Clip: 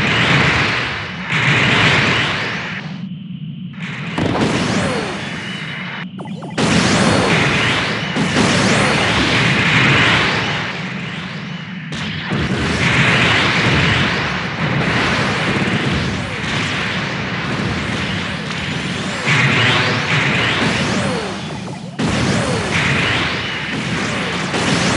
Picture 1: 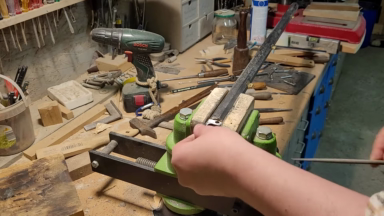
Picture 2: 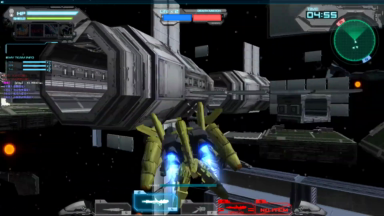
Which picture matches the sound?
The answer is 2